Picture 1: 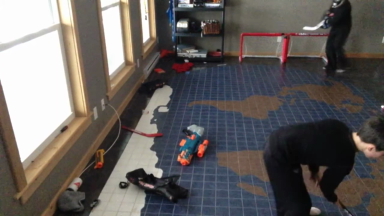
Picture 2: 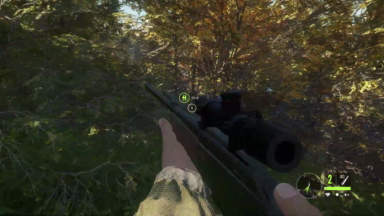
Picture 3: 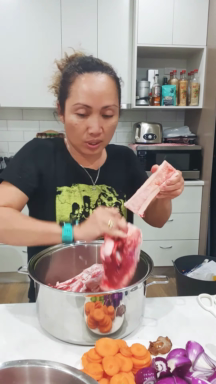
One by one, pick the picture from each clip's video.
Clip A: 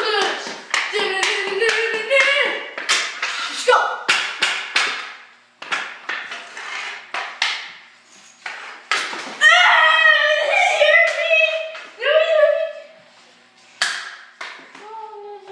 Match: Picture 1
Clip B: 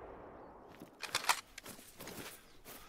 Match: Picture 2